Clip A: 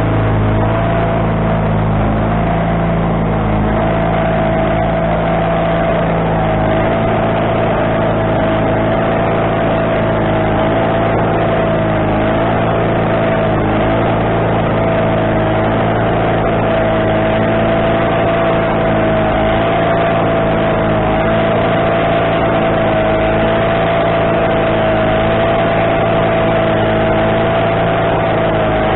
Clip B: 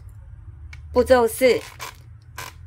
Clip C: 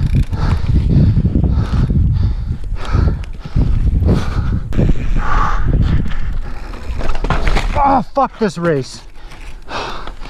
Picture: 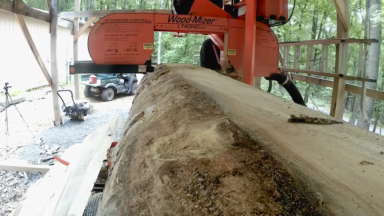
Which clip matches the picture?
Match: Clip A